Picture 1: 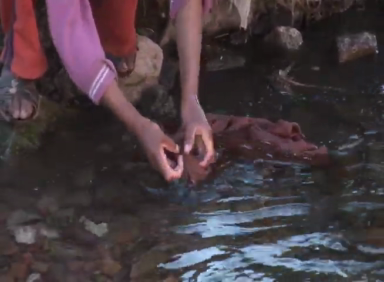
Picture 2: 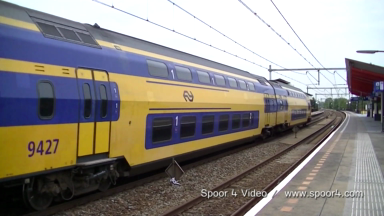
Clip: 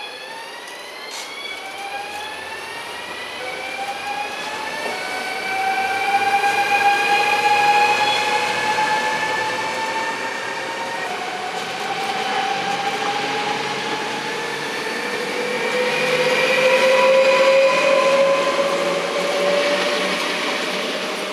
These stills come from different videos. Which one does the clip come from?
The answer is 2